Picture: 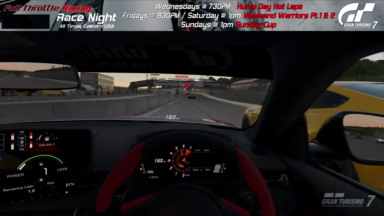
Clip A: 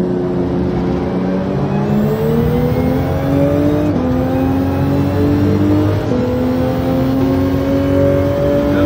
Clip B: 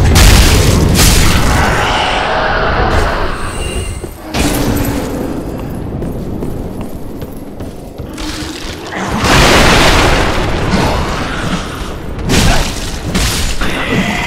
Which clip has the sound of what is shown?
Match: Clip A